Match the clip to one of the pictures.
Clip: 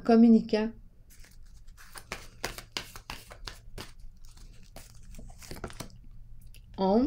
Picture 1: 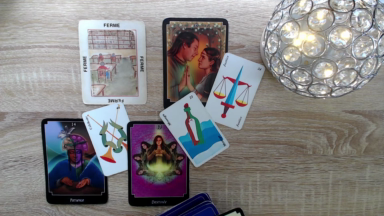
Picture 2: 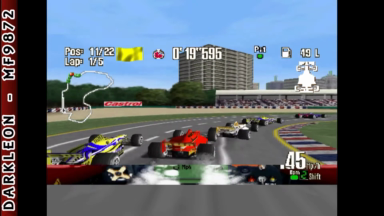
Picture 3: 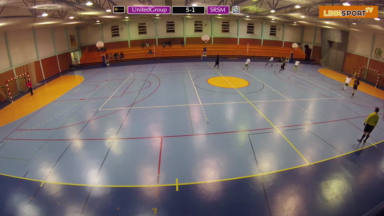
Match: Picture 1